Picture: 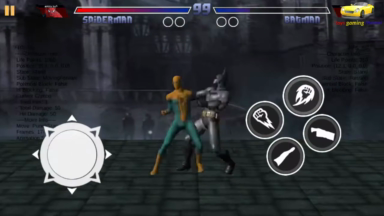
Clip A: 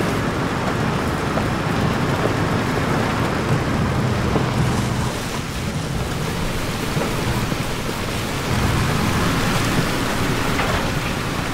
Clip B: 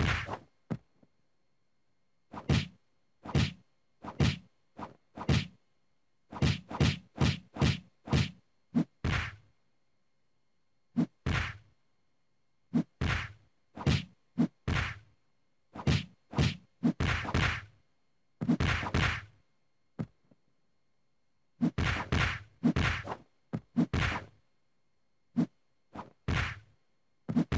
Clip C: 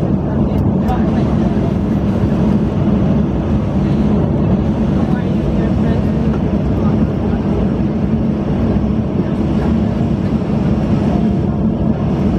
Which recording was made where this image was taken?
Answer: B